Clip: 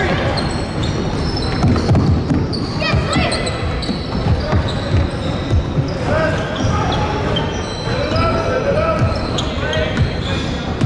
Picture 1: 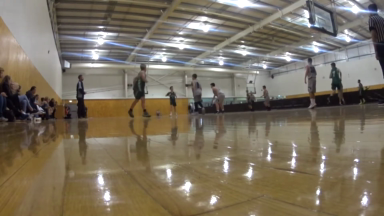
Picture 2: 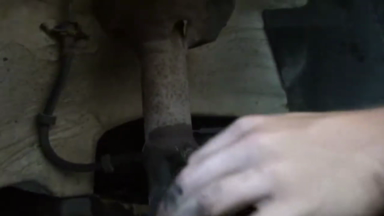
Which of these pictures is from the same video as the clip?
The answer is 1